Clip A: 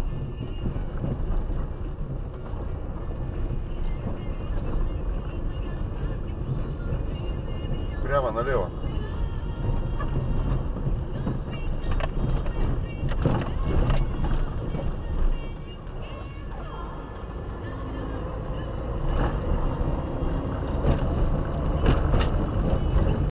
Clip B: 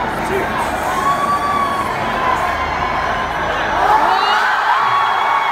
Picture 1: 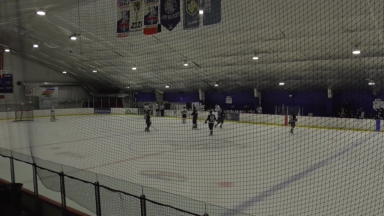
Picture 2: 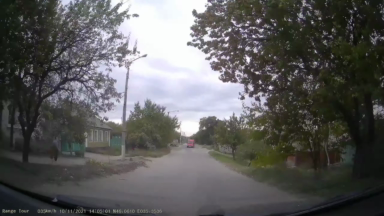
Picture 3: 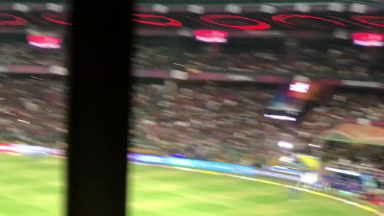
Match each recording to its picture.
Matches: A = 2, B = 3